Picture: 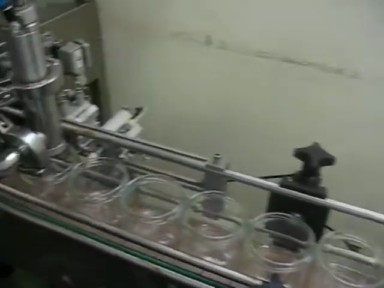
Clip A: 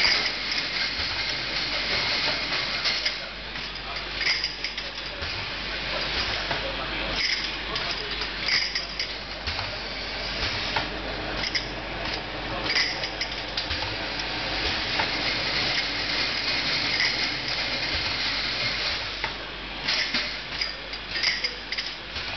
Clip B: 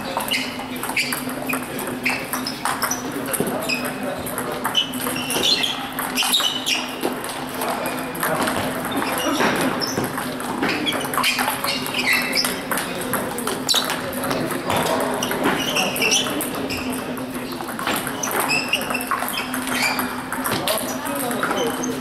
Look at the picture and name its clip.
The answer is A